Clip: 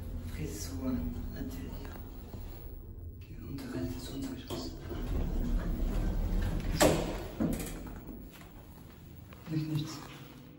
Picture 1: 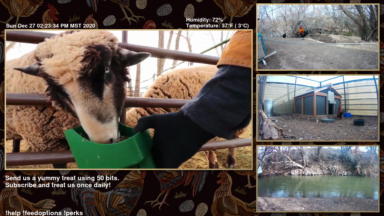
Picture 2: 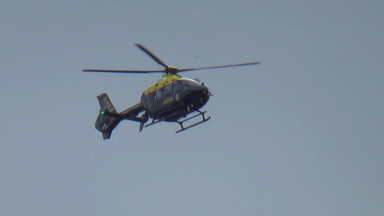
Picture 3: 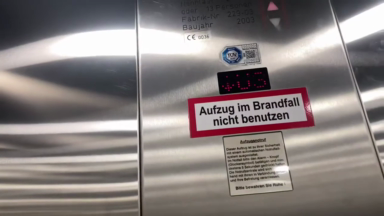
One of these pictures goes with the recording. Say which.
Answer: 3